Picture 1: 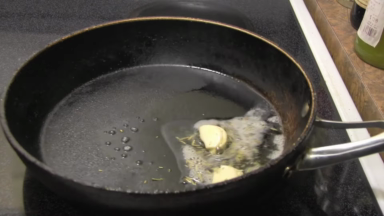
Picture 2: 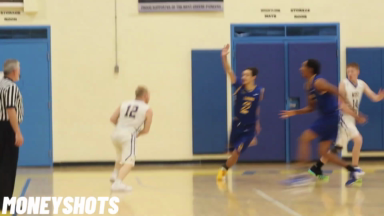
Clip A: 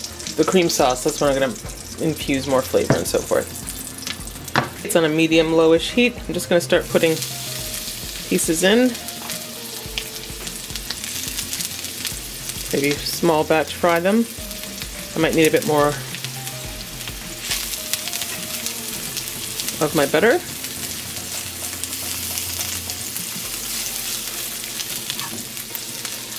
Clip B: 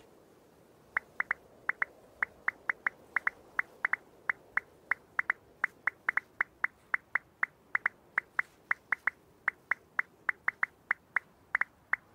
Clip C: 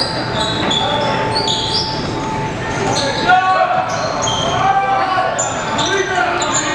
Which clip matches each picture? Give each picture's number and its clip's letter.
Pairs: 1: A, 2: C